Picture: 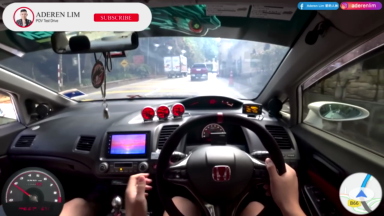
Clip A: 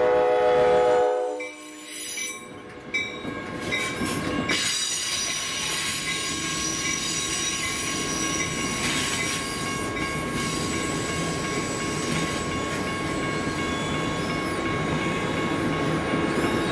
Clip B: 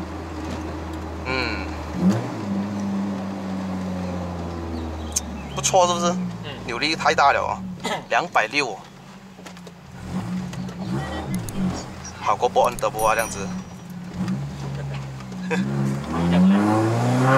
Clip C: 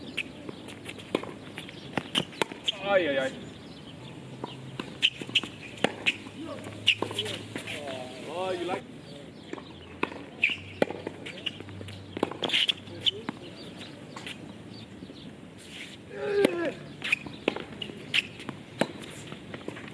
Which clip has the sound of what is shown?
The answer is B